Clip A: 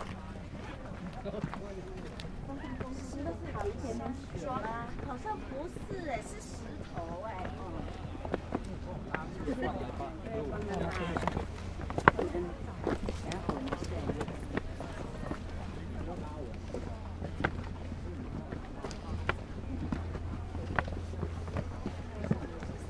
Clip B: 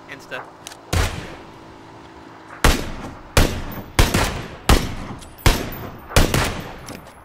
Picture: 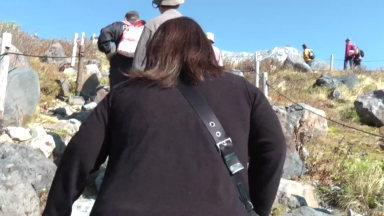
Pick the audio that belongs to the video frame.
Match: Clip A